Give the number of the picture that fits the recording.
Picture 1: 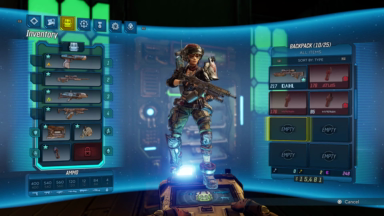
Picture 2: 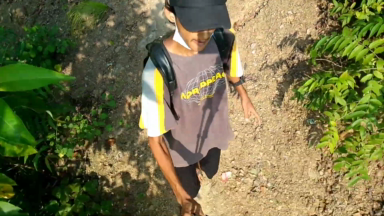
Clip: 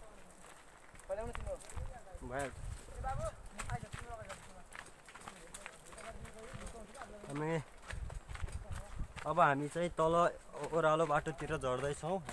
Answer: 2